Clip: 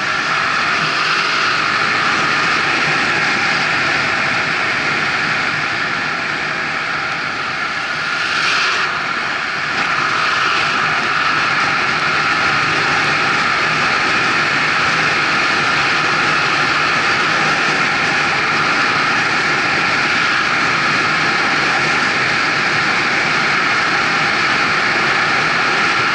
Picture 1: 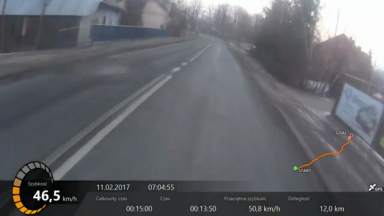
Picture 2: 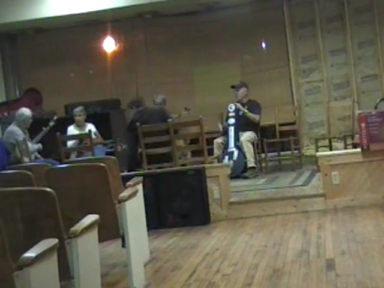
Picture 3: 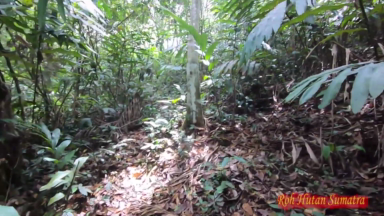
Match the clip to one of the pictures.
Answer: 1